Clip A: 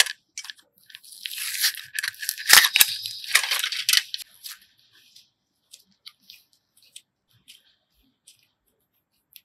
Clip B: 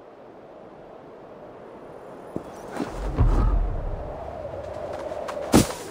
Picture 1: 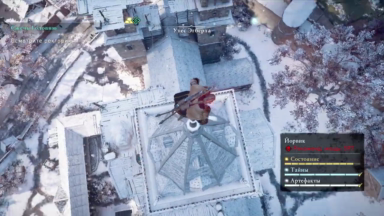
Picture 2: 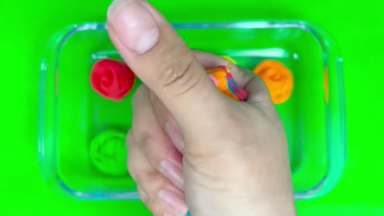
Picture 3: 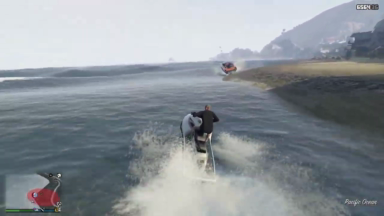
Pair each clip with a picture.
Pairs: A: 2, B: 1